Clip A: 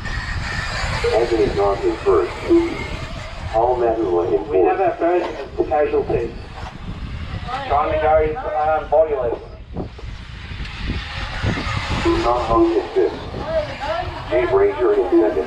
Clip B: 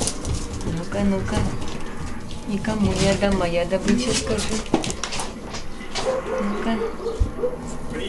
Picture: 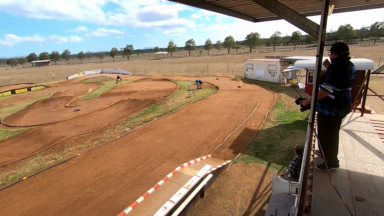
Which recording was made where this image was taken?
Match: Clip A